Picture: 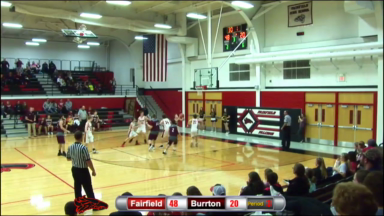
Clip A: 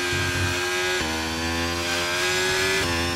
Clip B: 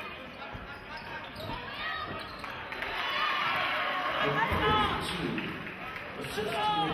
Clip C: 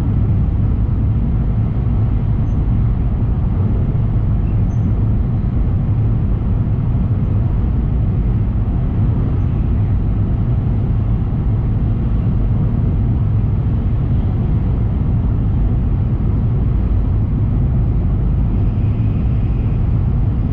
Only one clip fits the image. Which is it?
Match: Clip B